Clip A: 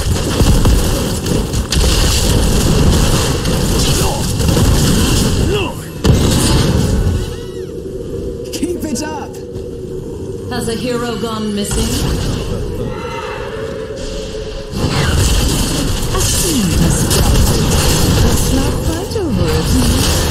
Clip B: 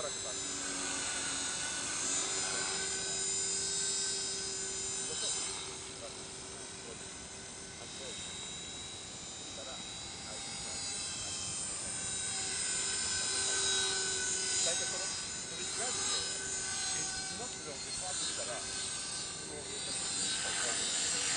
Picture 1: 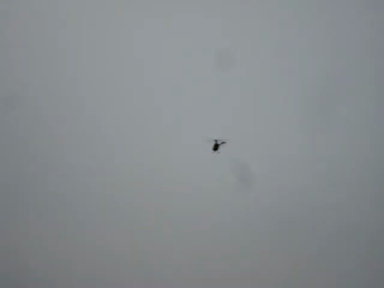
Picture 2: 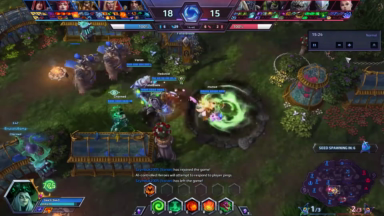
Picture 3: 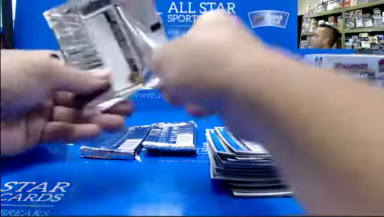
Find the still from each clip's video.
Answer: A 2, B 1